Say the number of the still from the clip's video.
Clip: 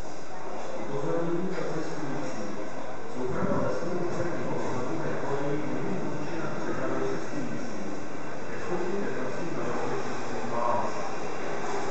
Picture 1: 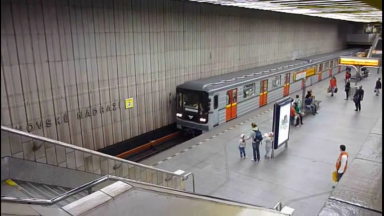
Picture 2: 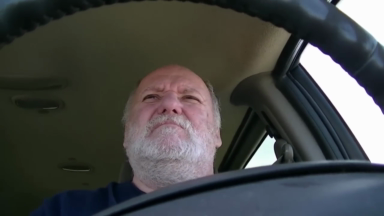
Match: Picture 1